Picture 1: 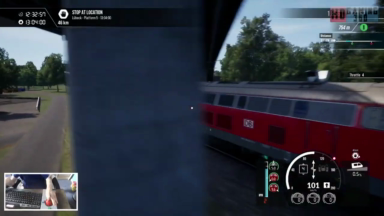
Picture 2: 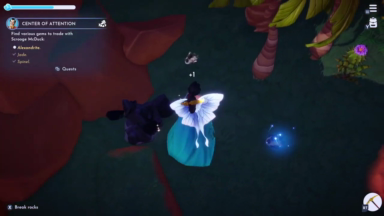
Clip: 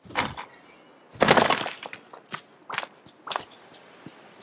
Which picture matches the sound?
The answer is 2